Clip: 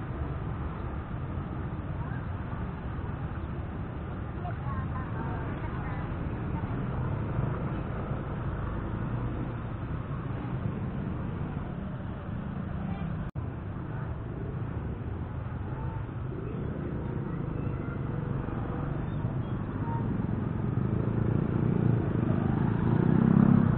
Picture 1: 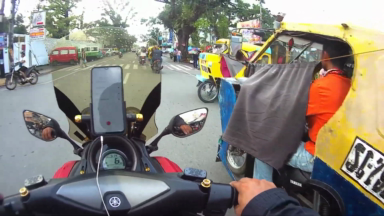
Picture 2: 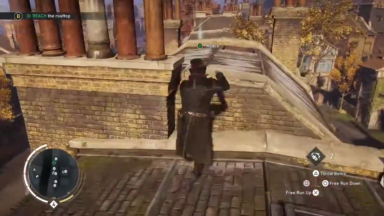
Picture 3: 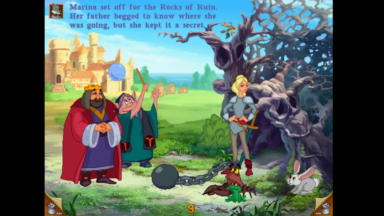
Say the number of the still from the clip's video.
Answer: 1